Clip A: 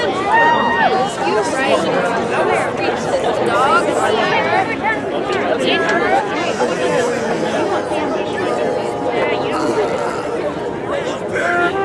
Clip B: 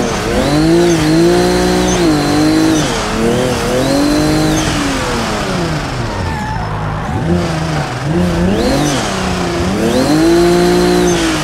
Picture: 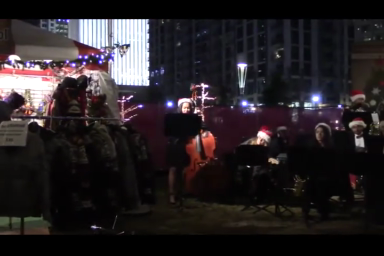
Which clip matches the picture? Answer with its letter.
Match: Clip A